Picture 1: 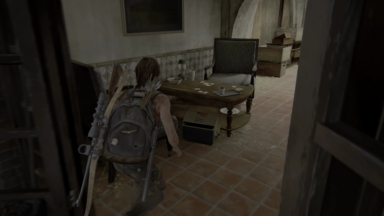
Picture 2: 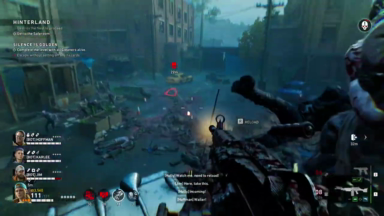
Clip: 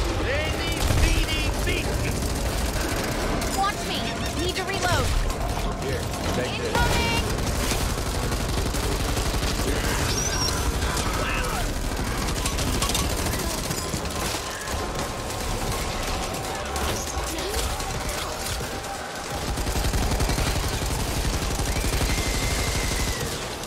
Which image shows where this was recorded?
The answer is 2